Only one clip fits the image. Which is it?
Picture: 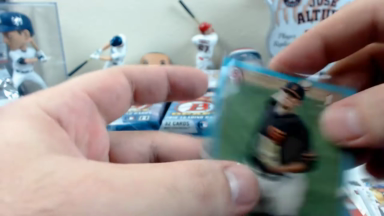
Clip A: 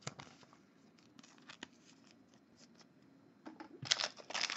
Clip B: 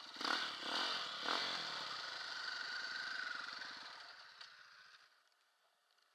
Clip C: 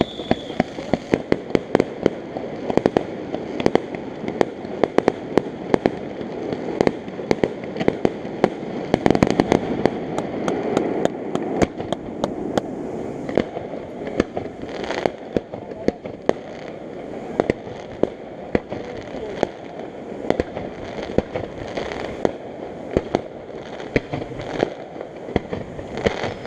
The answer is A